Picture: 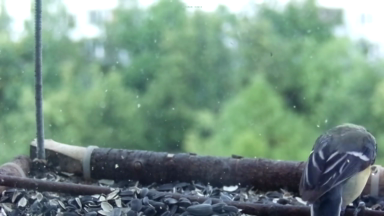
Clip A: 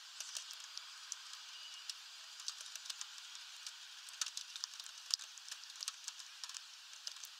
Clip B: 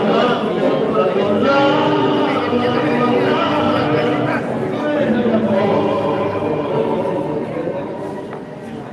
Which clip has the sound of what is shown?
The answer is A